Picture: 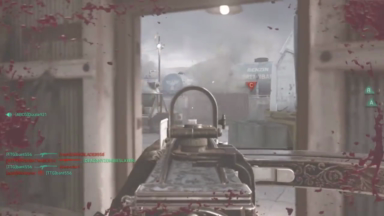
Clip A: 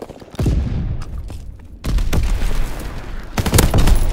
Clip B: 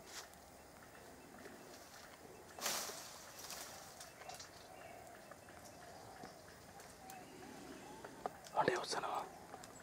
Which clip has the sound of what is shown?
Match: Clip A